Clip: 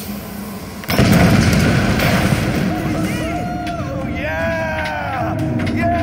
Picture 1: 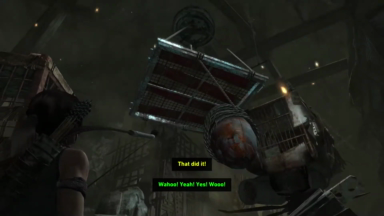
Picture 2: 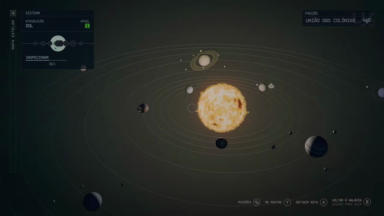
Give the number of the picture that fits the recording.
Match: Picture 1